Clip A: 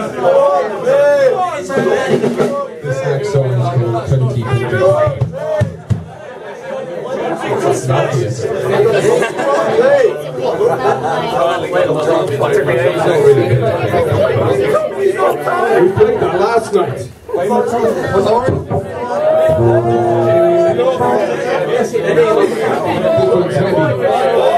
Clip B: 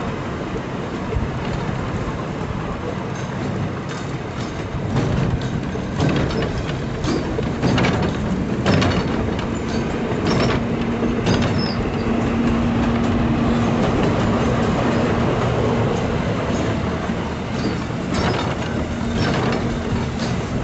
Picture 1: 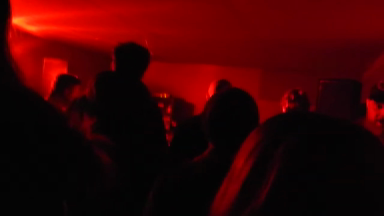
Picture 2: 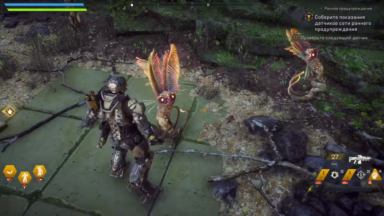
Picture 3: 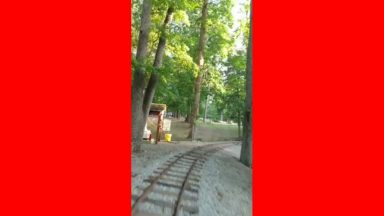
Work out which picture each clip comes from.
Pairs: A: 1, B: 3